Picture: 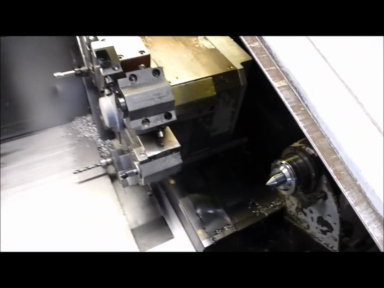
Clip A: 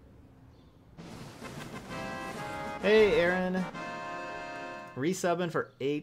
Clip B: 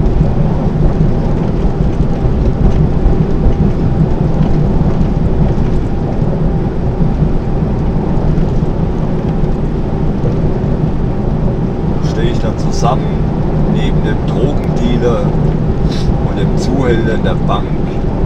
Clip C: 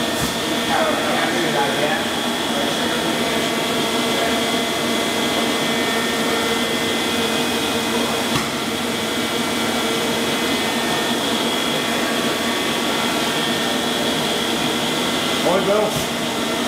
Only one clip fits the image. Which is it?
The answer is C